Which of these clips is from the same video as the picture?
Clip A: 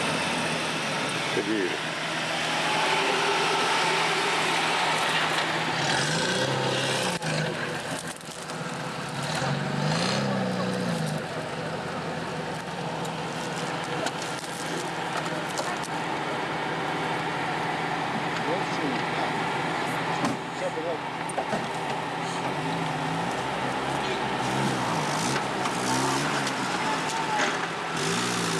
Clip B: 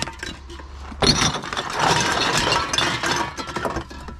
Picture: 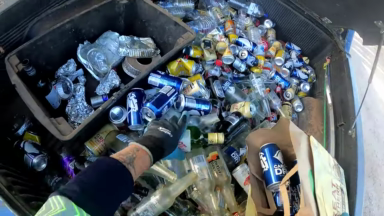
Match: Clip B